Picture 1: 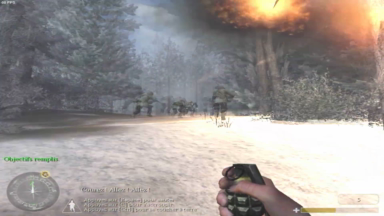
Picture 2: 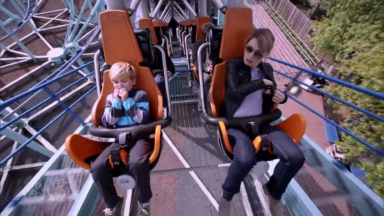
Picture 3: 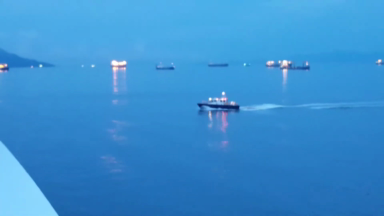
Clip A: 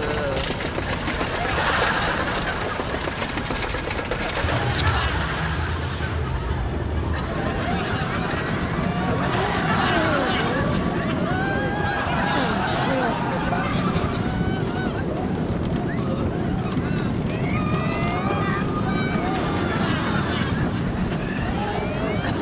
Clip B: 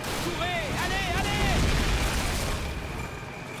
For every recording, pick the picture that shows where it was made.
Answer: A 2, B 1